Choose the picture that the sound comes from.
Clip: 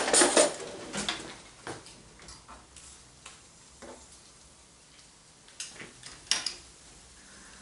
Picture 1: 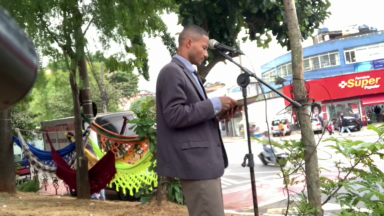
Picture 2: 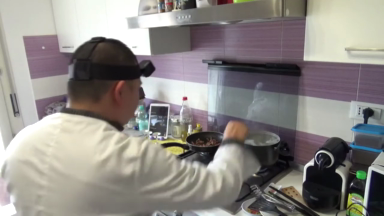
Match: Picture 2